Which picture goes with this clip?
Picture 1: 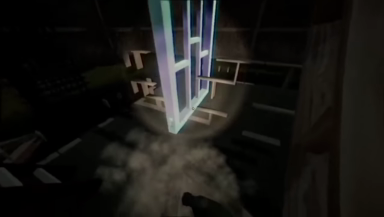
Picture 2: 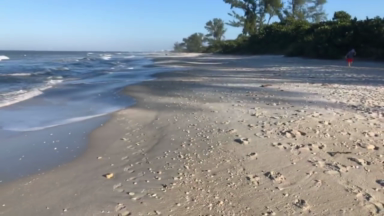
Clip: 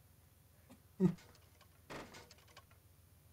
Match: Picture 1